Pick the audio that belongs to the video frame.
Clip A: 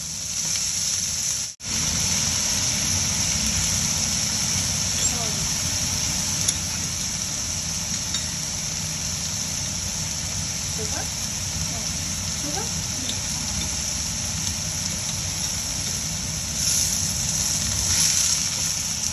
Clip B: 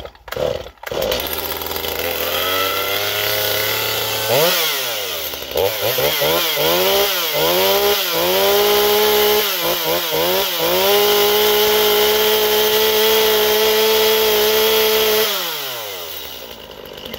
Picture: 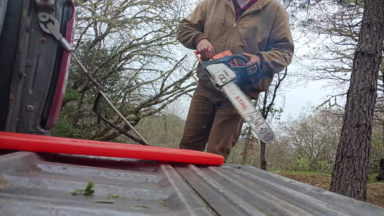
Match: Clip B